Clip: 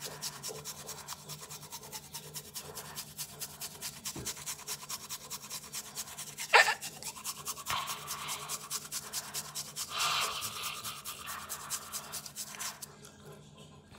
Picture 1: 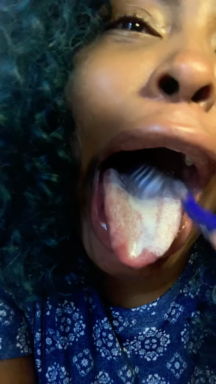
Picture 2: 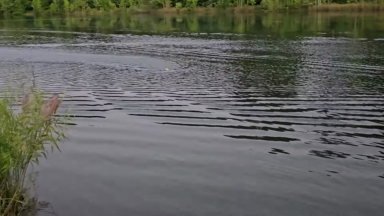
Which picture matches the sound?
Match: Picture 1